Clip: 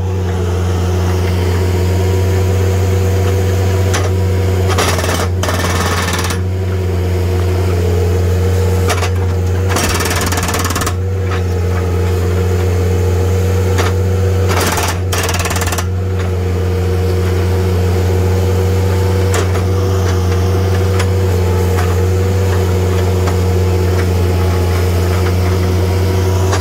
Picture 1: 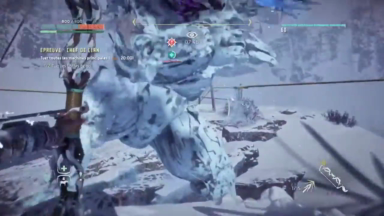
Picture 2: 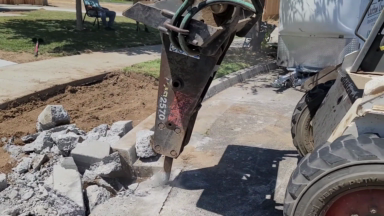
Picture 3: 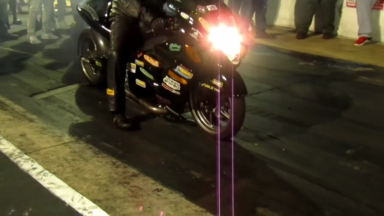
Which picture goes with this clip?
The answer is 2